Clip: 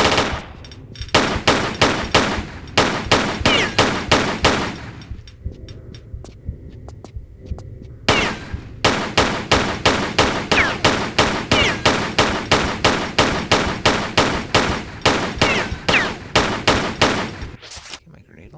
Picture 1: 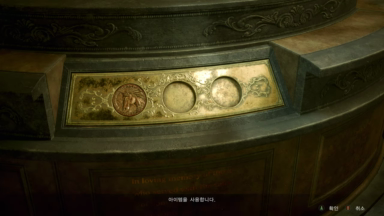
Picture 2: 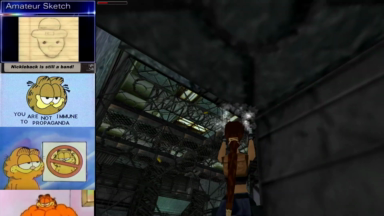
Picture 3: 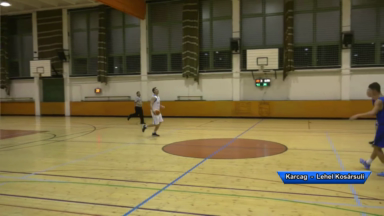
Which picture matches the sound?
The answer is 2